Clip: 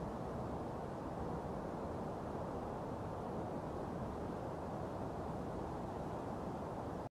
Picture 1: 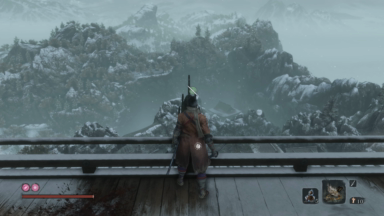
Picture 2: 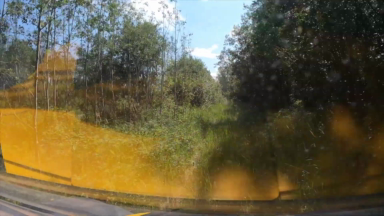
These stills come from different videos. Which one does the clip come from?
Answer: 1